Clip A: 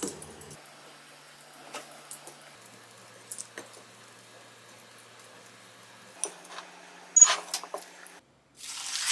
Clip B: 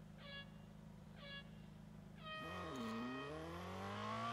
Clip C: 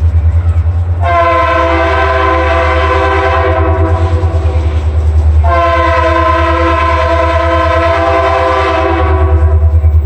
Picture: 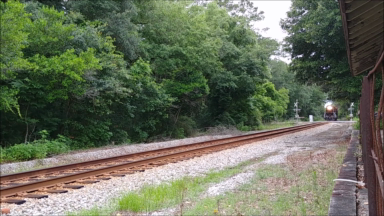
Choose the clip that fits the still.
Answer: C